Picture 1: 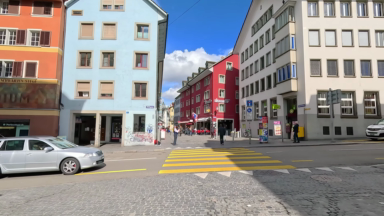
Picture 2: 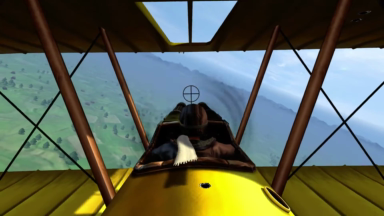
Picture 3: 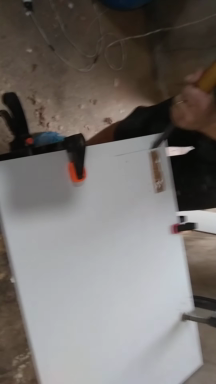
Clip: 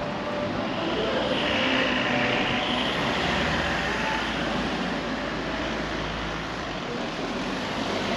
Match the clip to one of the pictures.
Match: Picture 1